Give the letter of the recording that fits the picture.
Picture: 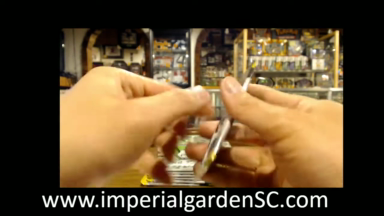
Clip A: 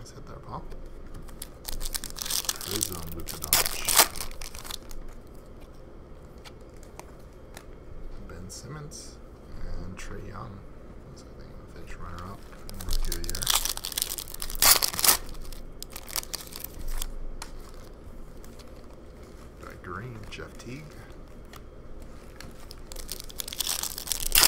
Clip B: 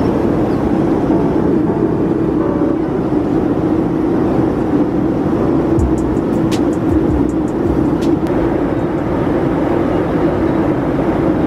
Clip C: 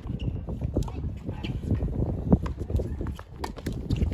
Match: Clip A